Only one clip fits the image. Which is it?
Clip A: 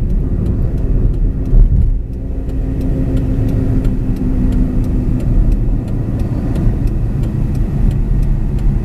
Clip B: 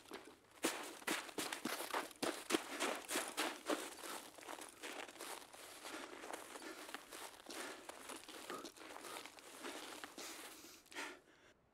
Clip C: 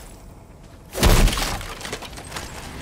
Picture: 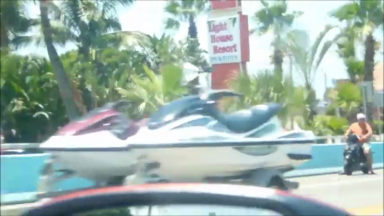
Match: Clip A